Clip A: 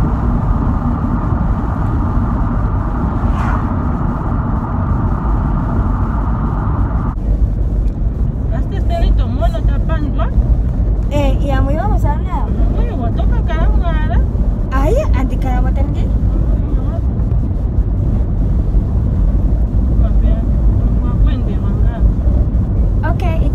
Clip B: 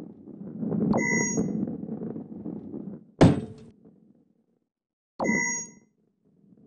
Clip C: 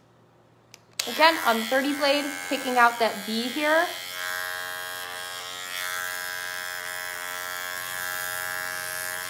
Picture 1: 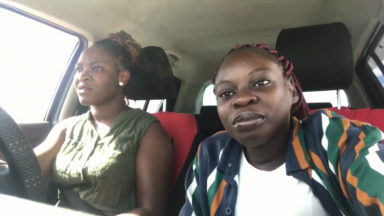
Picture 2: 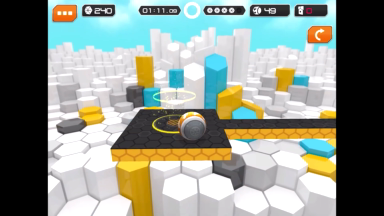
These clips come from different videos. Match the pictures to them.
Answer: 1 A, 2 B